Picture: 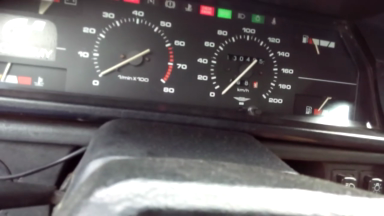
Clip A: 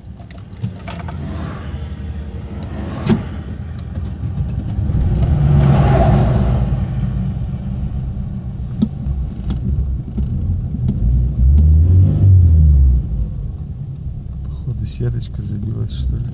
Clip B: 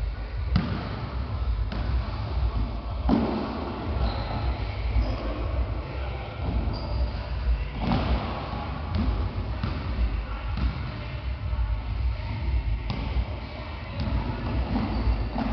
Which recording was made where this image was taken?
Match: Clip A